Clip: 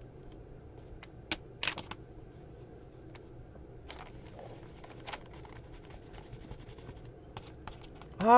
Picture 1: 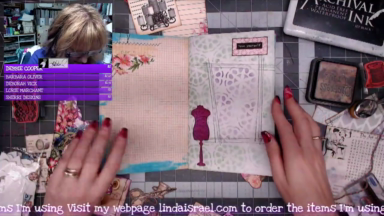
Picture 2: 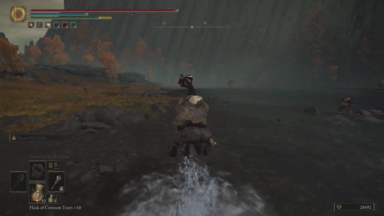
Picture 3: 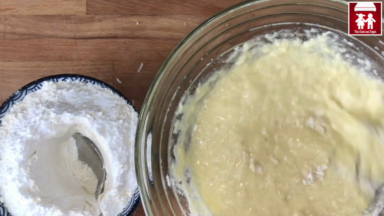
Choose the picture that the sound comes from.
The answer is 1